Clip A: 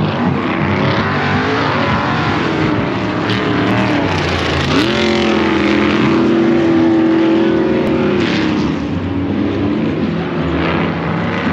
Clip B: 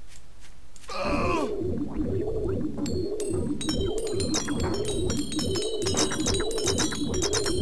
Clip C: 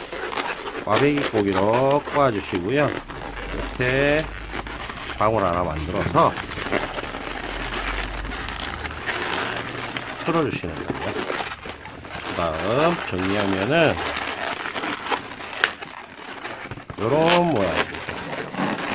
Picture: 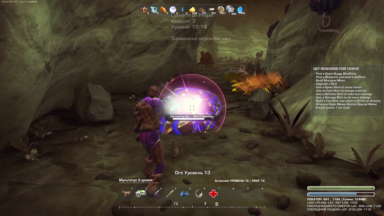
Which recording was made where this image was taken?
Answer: B